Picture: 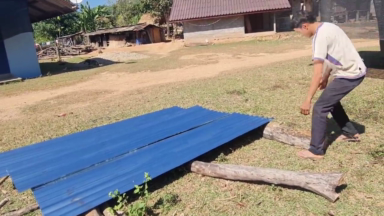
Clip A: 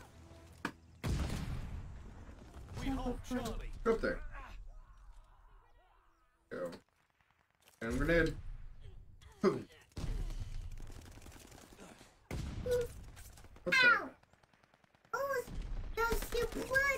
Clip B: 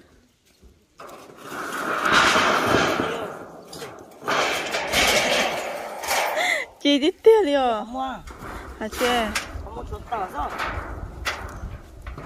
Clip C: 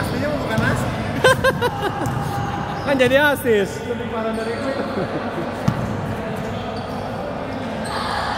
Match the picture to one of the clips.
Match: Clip B